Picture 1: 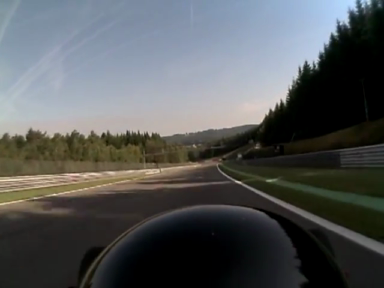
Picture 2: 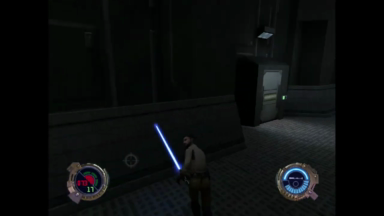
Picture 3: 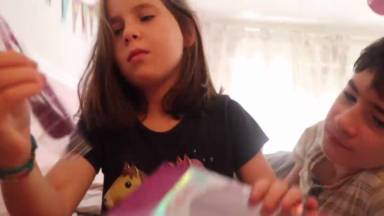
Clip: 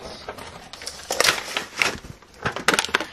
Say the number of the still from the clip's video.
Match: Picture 3